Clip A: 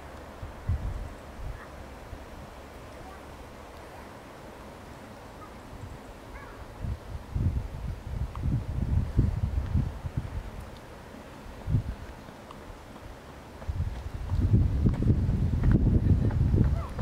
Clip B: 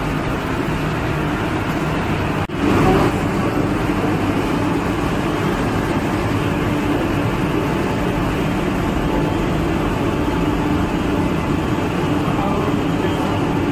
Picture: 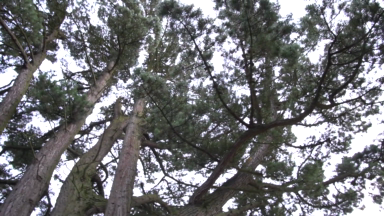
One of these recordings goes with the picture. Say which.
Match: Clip A